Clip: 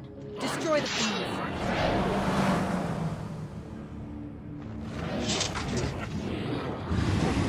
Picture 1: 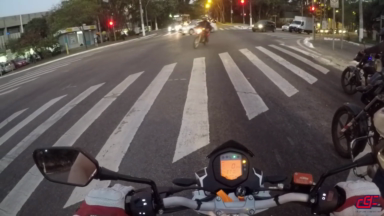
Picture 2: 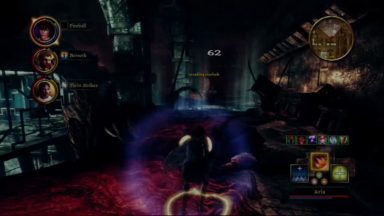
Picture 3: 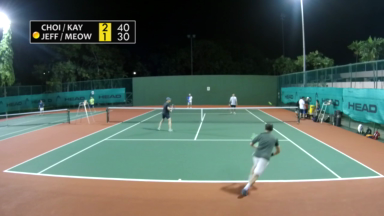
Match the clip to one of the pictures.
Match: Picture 2